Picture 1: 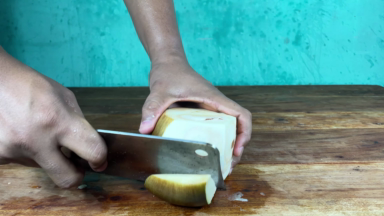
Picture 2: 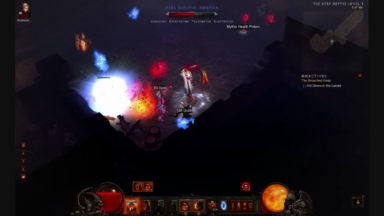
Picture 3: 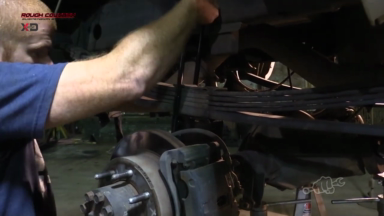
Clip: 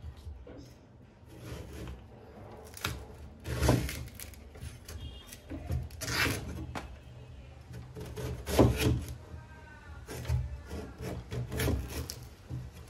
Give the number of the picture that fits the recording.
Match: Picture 1